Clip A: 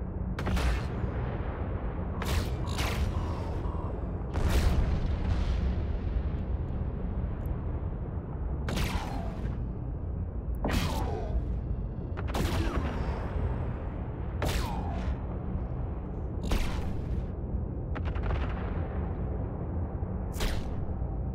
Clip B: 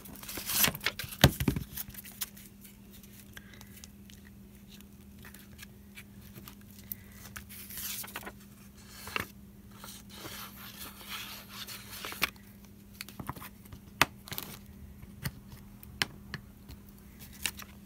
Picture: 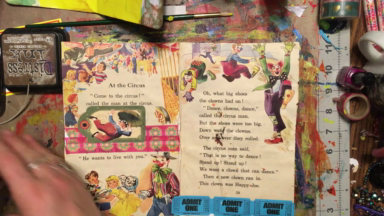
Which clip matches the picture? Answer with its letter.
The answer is B